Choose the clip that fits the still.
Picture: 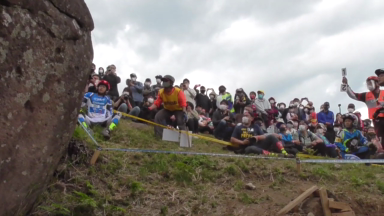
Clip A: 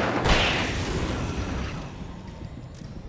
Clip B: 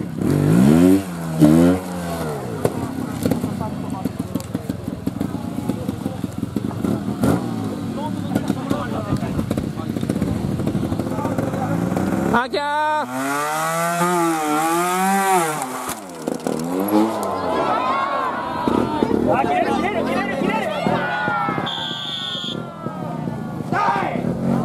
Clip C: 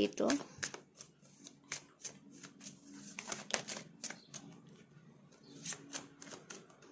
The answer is B